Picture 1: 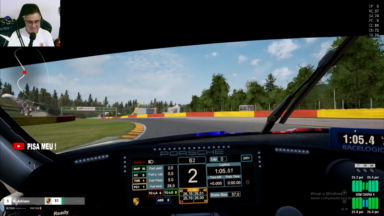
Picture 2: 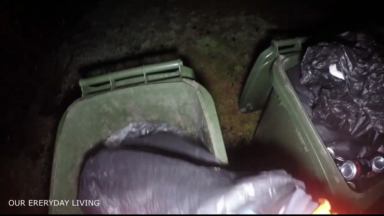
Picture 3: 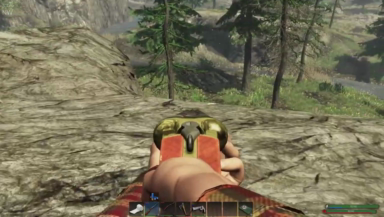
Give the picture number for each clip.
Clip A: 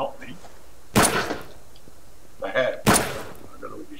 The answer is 3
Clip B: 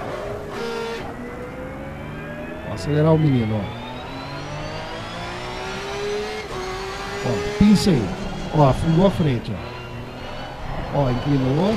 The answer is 1